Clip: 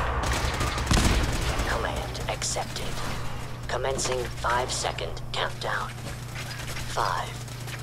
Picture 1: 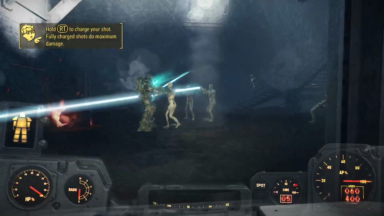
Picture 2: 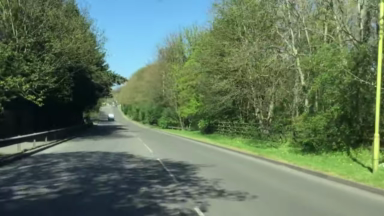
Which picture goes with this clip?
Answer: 1